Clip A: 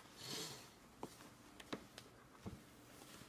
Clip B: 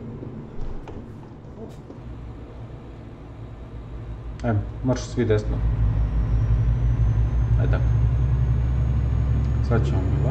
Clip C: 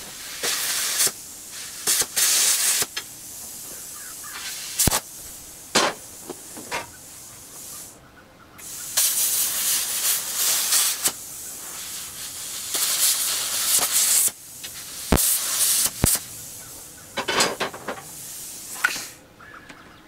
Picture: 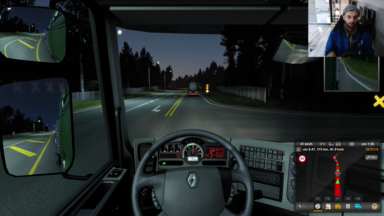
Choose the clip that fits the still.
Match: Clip B